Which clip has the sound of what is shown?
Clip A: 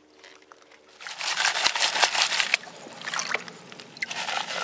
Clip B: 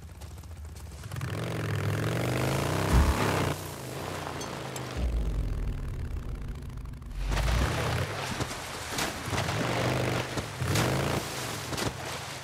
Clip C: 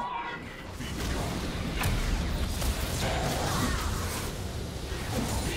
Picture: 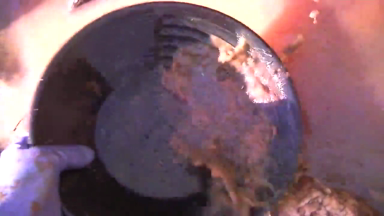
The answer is A